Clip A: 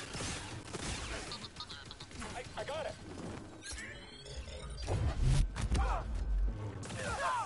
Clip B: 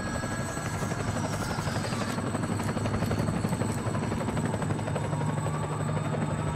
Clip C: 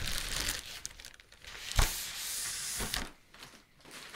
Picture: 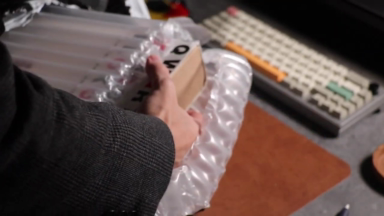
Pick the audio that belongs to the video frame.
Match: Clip C